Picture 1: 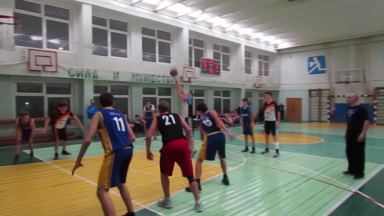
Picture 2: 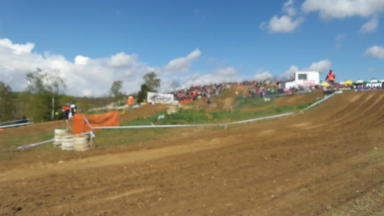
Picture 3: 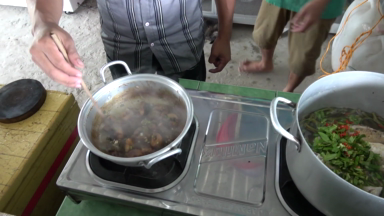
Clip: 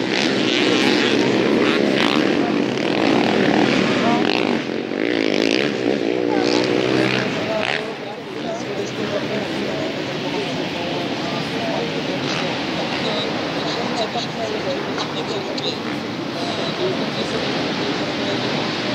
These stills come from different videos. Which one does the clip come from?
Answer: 2